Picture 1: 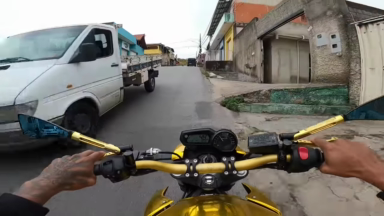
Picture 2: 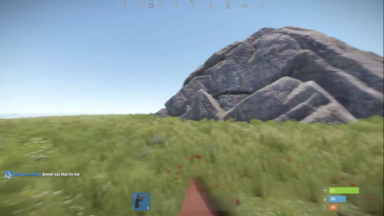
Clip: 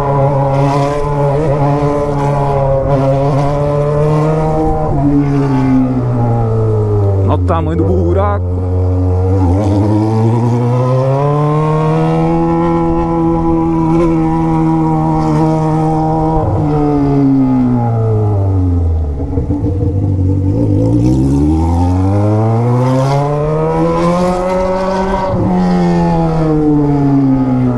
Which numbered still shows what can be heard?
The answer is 1